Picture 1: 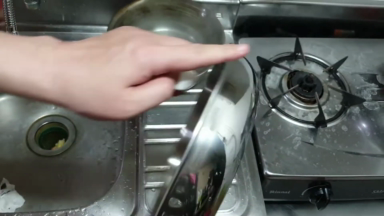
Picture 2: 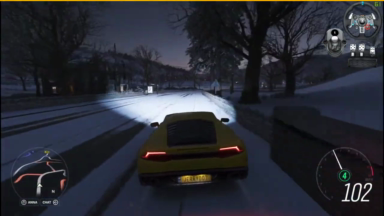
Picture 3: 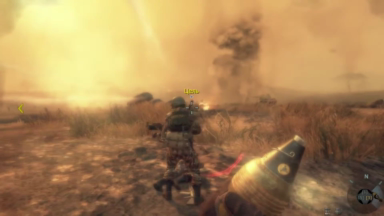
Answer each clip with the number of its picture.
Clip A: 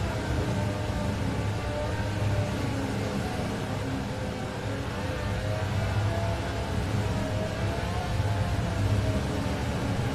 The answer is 2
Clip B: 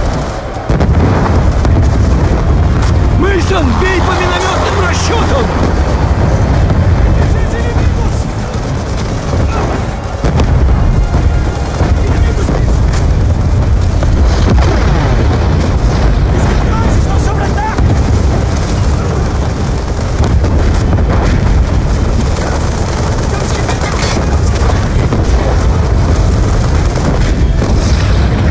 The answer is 3